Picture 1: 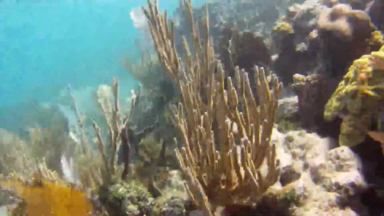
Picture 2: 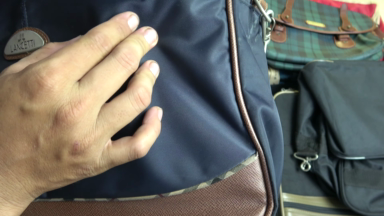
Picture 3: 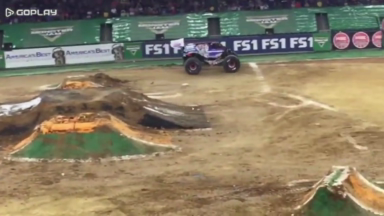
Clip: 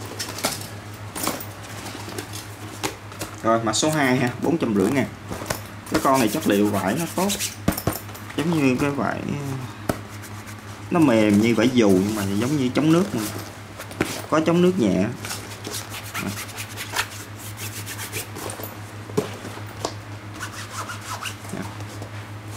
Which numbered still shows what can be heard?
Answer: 2